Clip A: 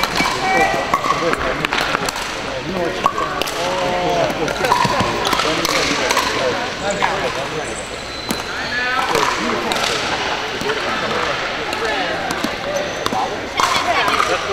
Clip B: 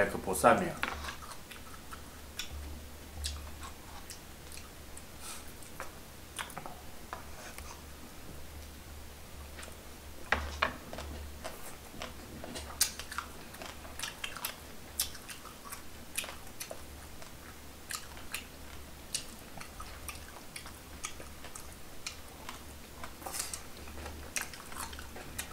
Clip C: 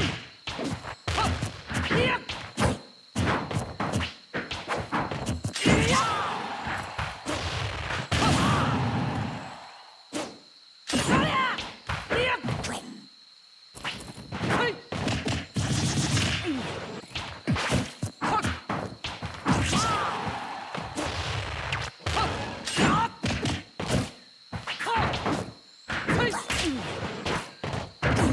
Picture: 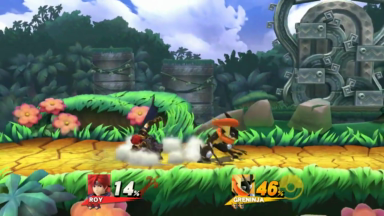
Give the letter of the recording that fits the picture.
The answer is C